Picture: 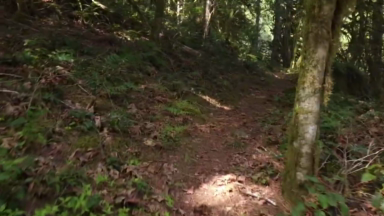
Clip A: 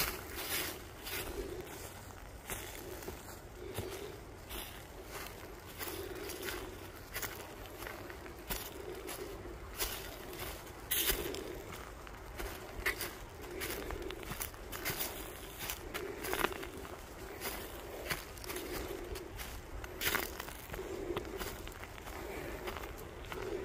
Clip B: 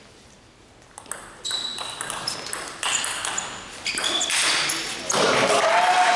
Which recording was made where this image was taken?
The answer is A